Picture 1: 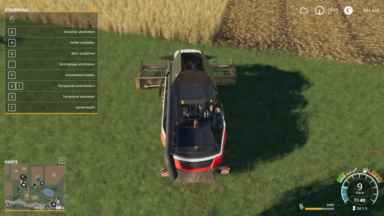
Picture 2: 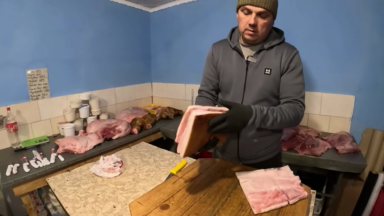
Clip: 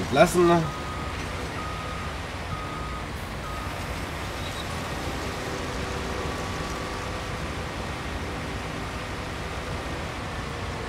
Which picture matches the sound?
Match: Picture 1